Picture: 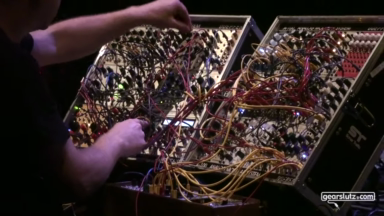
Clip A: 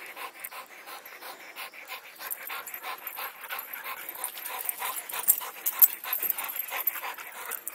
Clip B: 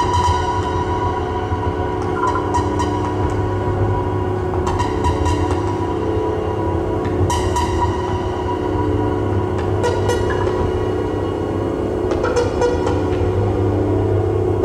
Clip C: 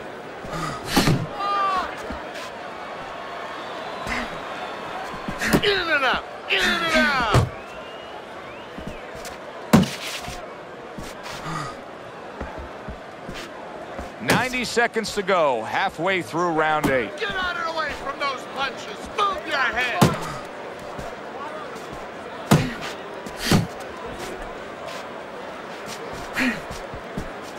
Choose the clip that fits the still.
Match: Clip B